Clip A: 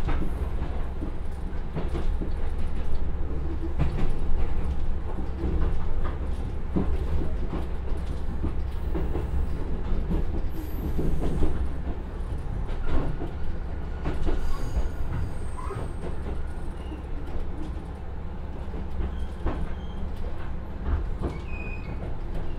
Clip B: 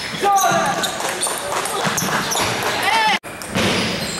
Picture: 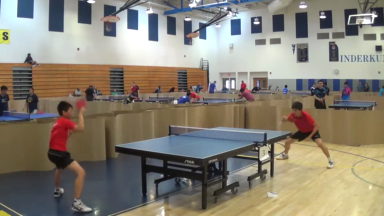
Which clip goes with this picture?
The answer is B